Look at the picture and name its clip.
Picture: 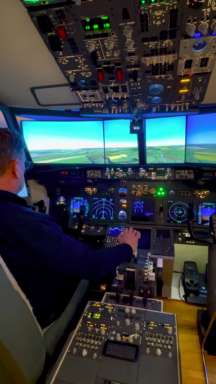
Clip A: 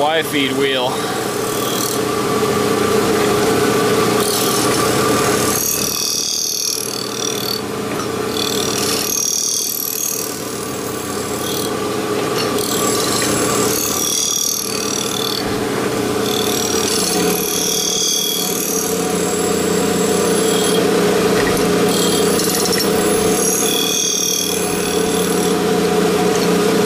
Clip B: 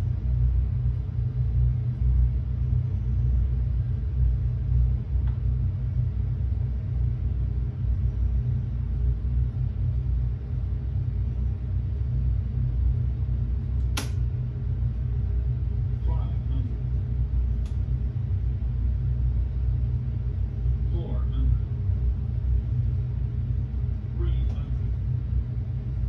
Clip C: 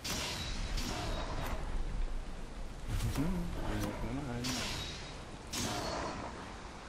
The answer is B